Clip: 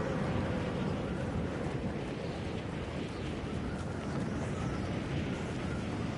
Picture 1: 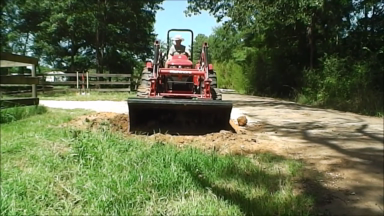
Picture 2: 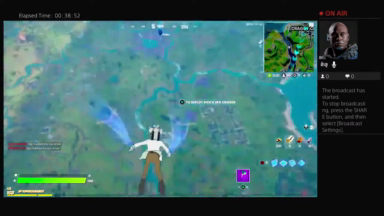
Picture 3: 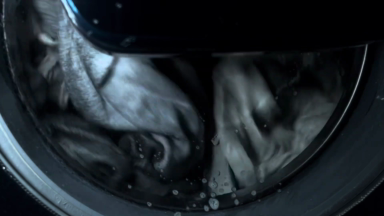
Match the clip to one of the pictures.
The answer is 2